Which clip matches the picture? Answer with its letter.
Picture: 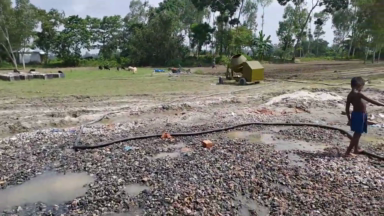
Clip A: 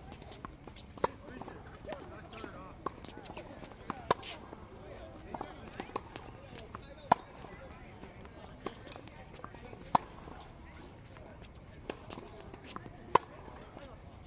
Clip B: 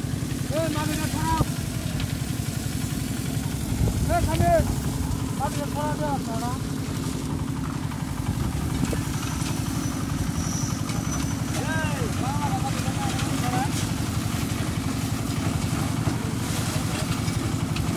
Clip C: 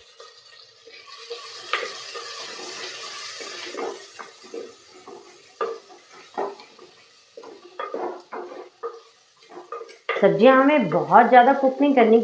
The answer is B